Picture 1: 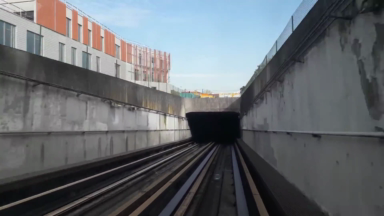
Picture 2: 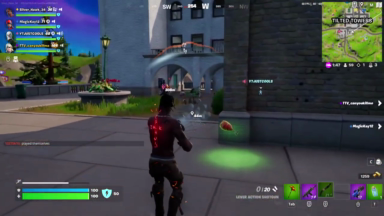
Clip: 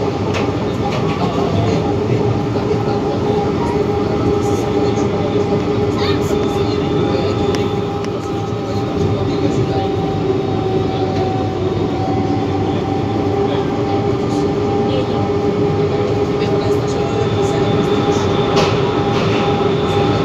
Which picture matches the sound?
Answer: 1